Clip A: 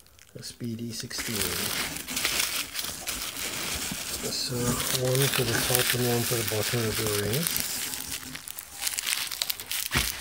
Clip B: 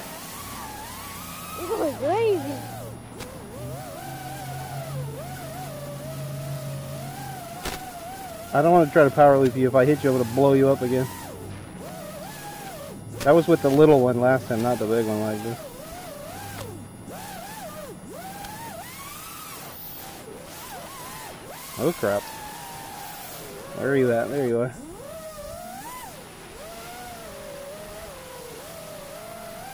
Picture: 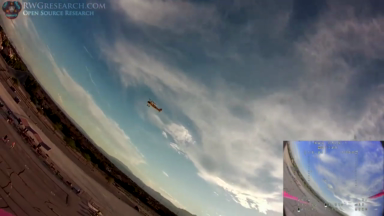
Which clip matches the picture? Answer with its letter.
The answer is B